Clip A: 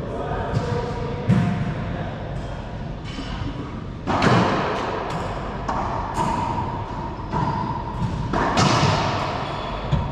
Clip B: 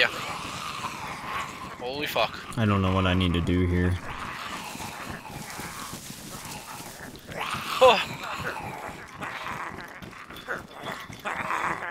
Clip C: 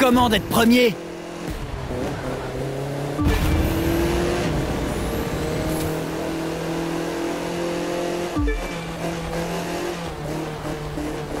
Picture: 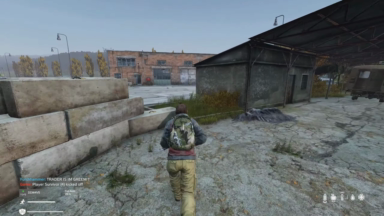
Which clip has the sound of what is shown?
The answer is B